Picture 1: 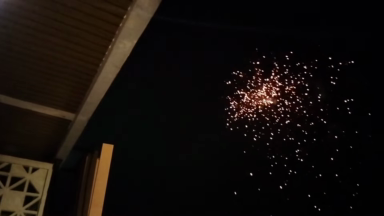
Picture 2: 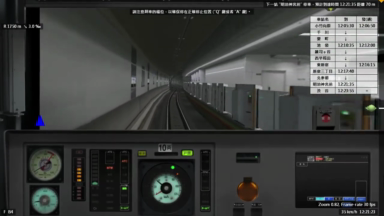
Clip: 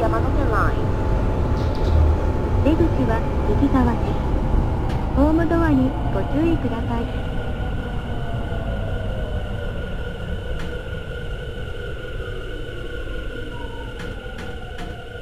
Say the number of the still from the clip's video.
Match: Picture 2